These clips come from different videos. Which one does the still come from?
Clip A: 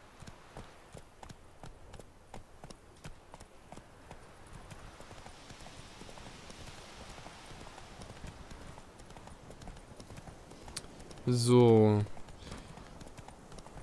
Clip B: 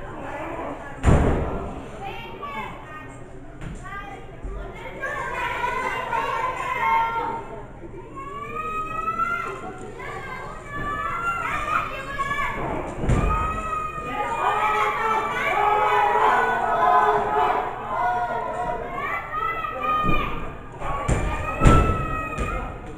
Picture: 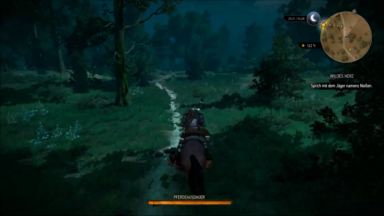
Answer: A